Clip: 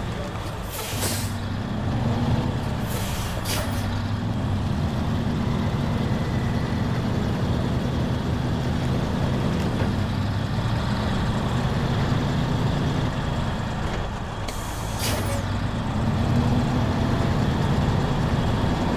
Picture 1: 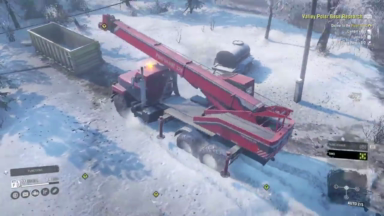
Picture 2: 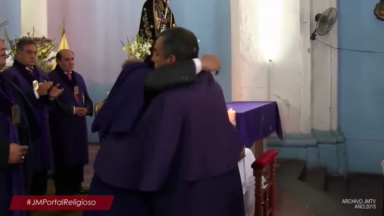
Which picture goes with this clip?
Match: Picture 1